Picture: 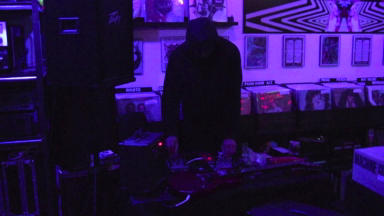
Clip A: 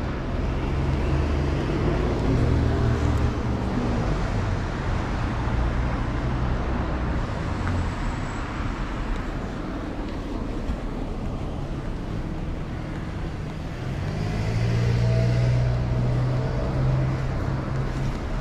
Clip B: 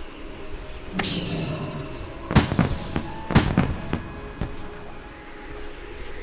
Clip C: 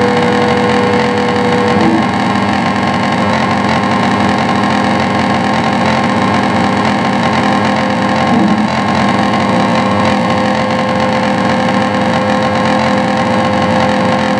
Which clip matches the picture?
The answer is C